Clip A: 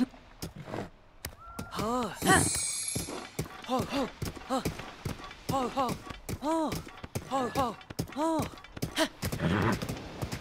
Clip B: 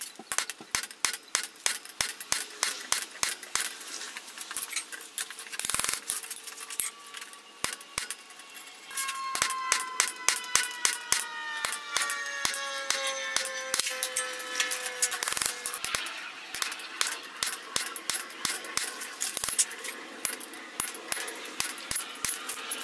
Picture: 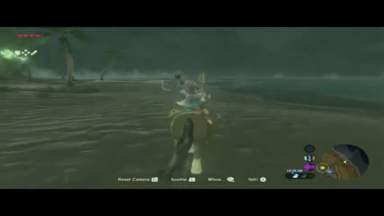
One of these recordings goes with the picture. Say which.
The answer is A